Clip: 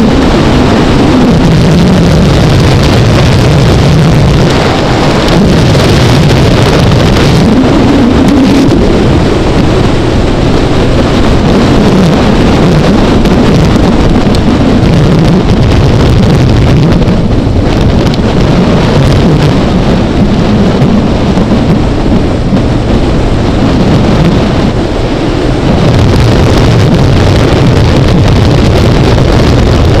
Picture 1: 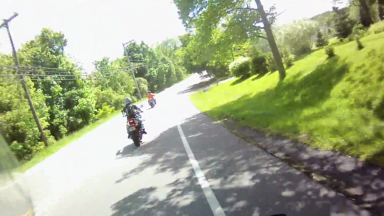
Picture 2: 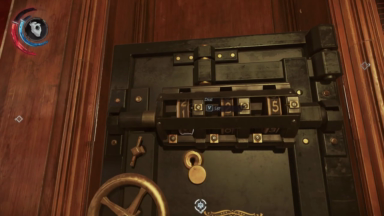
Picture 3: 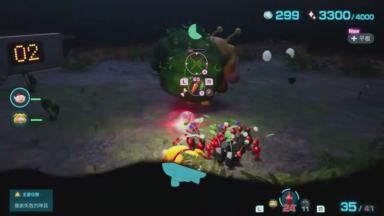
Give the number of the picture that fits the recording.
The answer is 1